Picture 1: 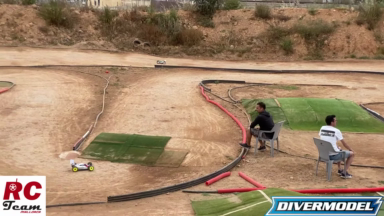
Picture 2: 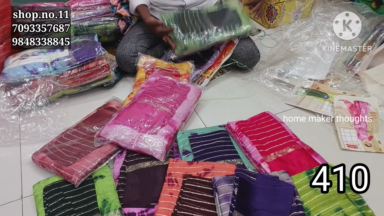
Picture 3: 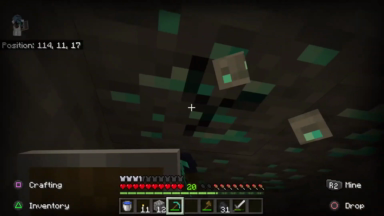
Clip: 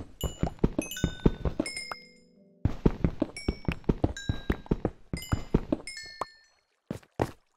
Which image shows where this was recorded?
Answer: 3